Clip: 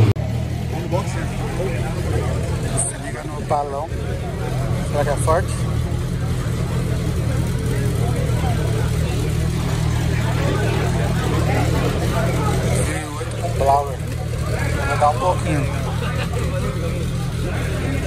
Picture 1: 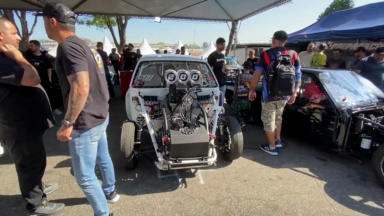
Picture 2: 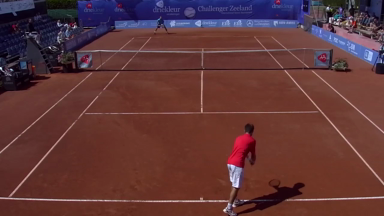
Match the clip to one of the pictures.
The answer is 1